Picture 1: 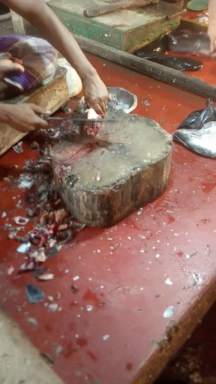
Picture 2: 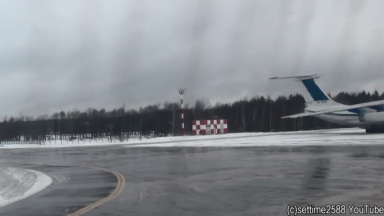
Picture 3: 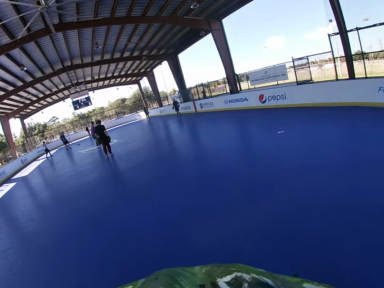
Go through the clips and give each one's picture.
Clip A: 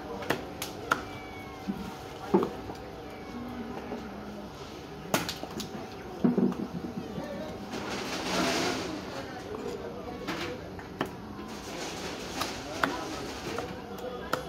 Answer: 1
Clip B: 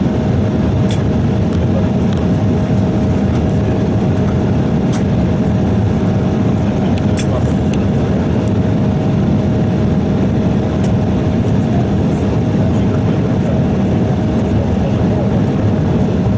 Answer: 2